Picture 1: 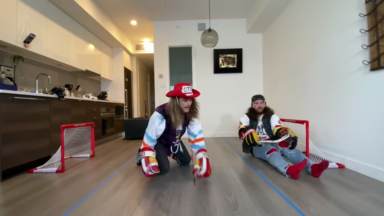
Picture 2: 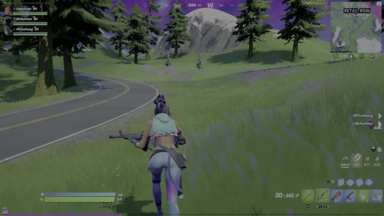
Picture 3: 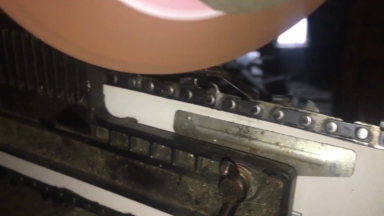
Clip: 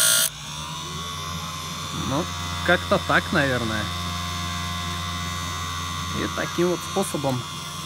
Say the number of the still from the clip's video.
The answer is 3